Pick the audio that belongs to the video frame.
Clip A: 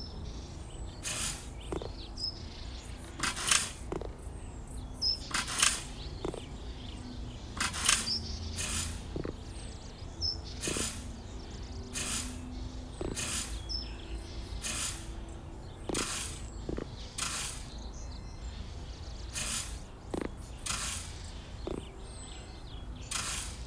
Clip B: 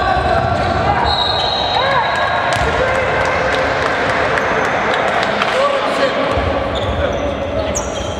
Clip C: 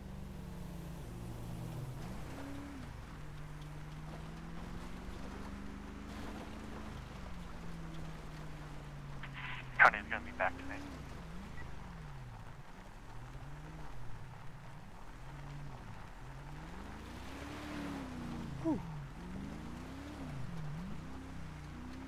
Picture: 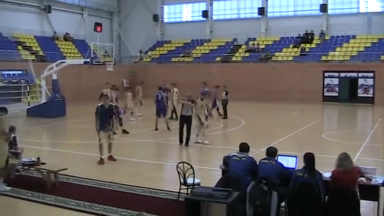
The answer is B